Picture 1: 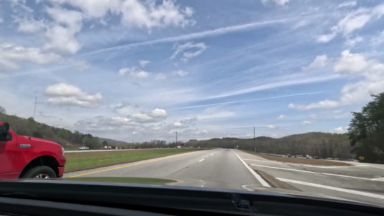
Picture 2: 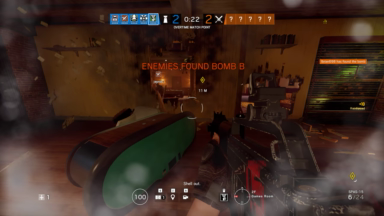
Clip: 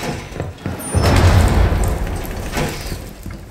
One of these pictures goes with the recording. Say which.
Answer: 2